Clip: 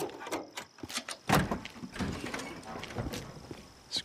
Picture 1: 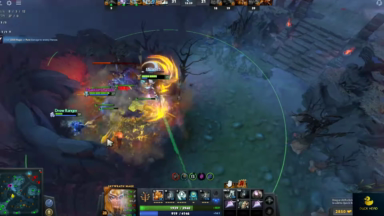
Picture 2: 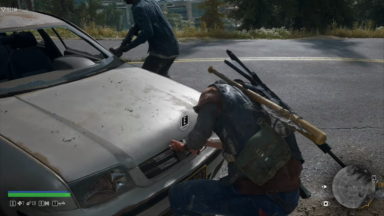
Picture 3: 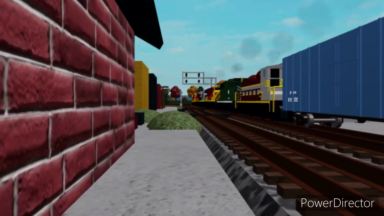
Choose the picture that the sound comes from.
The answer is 2